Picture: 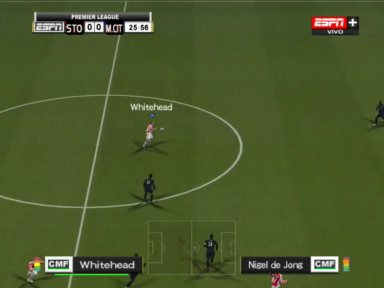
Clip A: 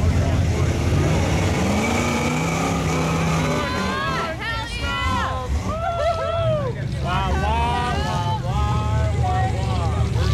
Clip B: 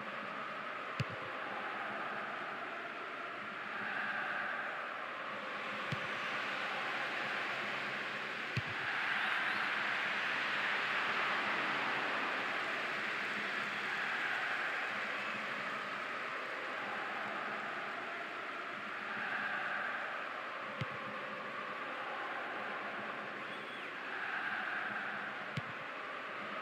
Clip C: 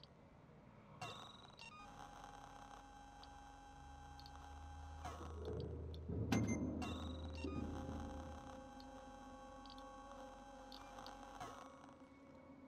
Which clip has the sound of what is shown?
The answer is B